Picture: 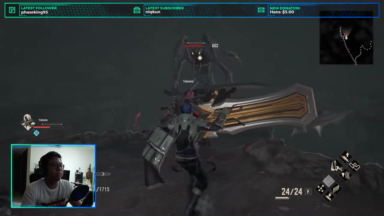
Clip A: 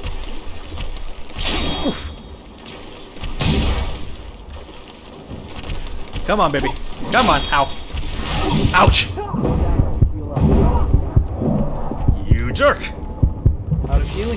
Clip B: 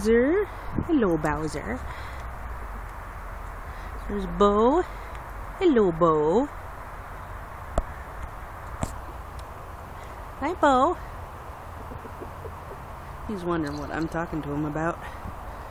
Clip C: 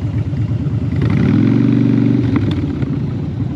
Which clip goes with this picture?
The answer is A